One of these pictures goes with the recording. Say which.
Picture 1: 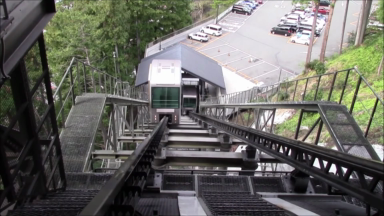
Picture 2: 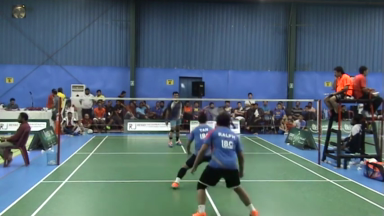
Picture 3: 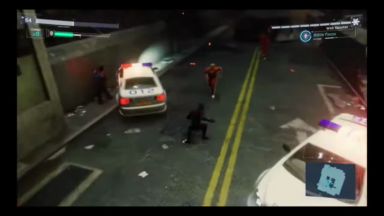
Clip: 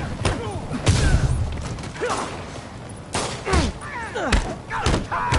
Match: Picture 3